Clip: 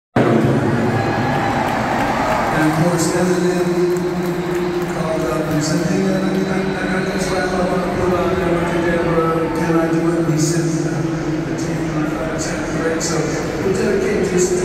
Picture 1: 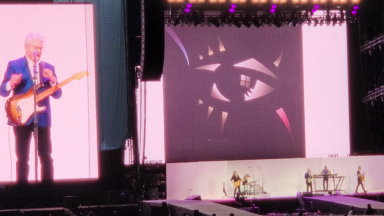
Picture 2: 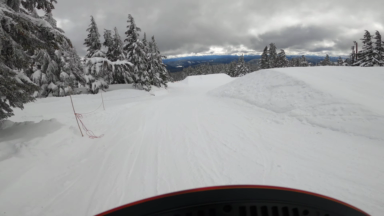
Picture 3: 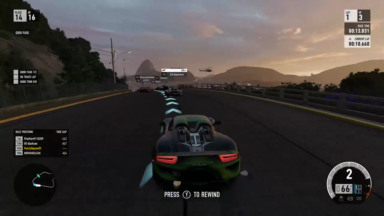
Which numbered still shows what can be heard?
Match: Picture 1